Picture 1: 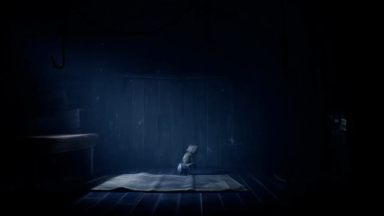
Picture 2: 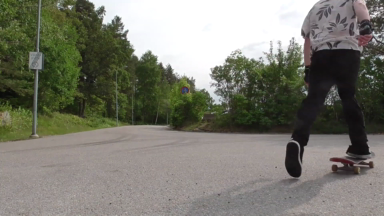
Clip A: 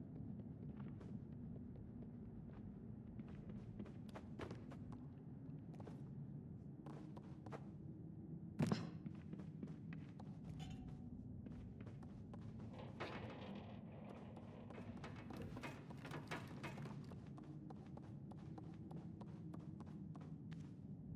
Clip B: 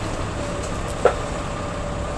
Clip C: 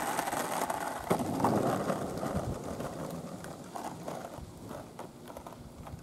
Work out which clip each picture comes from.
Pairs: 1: A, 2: C